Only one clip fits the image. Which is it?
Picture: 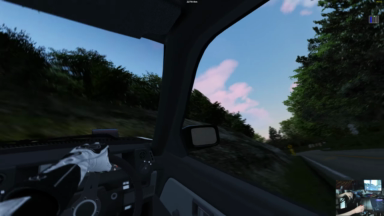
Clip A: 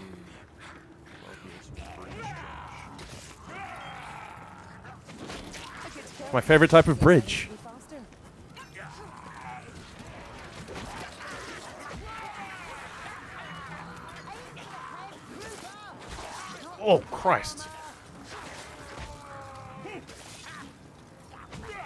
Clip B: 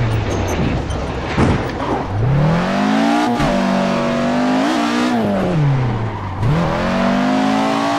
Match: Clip B